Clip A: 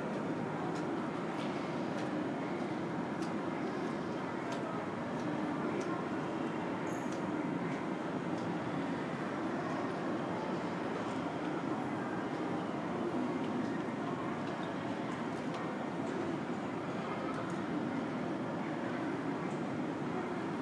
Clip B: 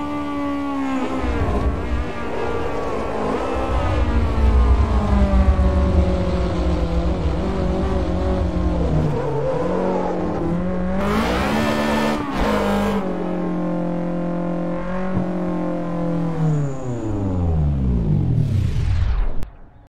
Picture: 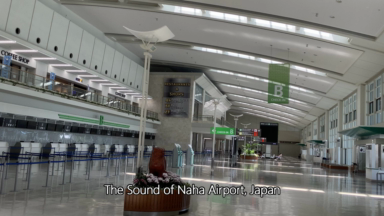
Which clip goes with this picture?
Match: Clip A